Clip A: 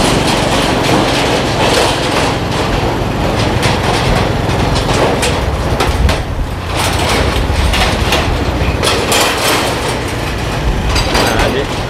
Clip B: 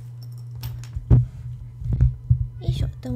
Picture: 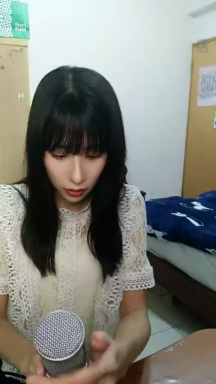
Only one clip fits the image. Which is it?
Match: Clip B